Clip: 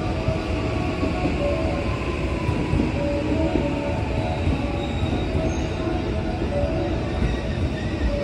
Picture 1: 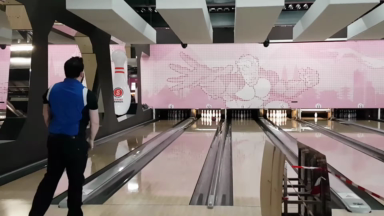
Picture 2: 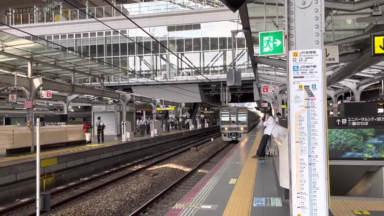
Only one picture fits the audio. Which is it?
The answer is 2